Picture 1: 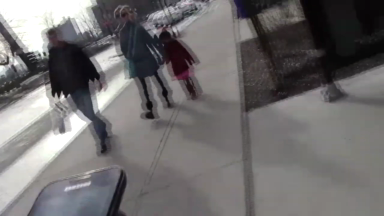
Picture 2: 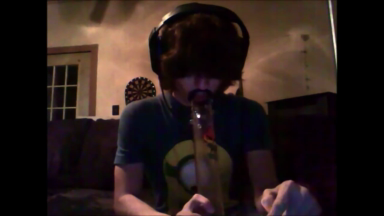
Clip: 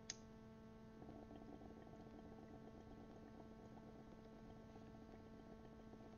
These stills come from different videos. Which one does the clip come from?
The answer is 2